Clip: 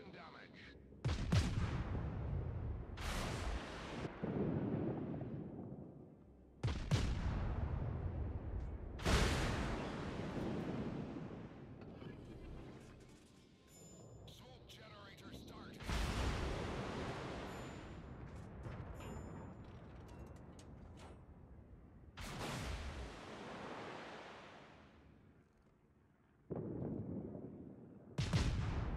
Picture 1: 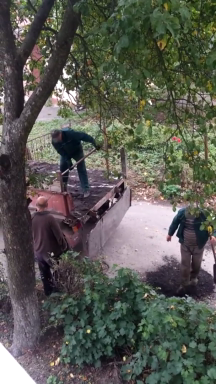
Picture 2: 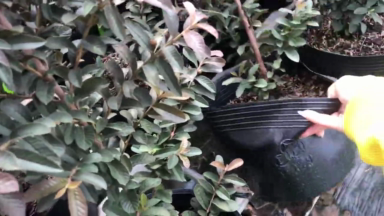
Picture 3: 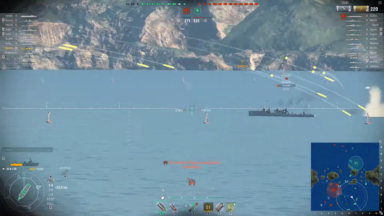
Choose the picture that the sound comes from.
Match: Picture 3